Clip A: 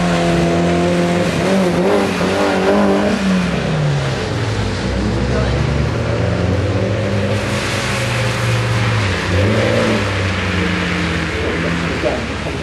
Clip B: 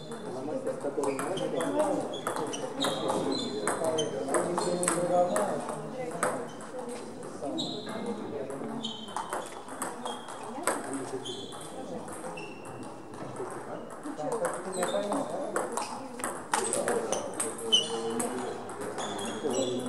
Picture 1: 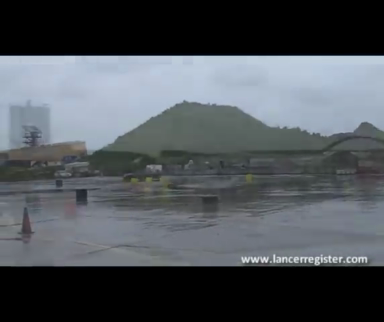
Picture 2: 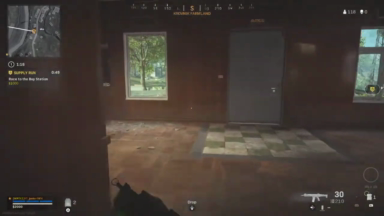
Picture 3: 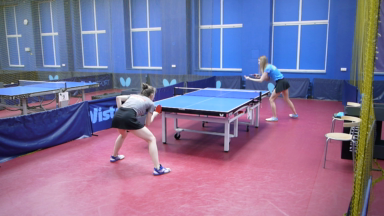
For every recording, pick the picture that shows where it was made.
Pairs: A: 1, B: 3